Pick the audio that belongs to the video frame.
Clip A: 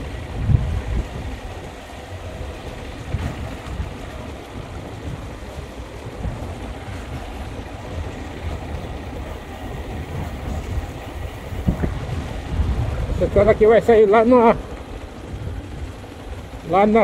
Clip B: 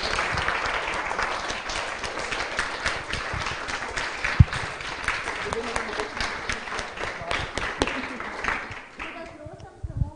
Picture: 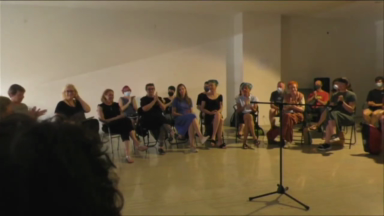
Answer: B